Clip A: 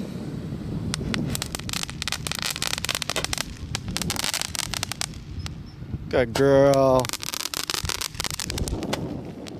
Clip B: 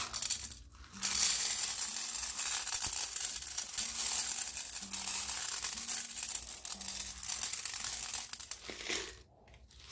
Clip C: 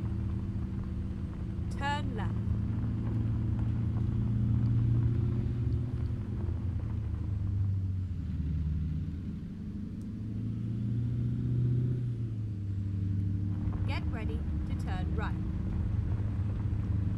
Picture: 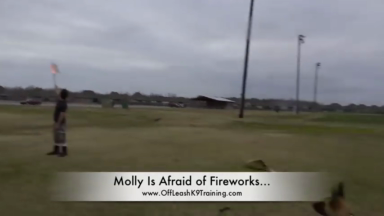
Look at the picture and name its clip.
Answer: A